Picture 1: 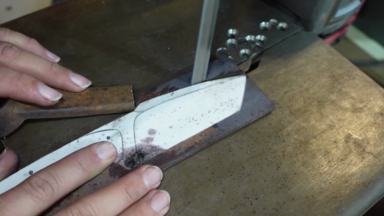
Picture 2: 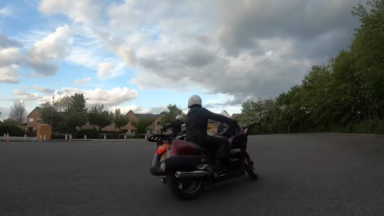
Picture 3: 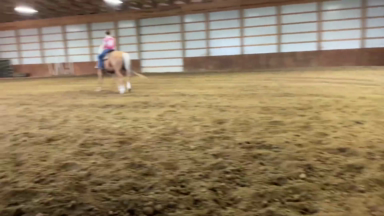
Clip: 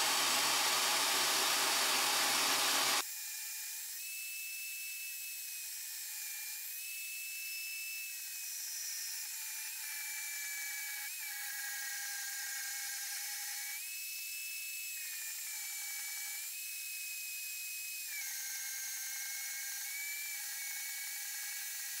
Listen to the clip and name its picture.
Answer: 1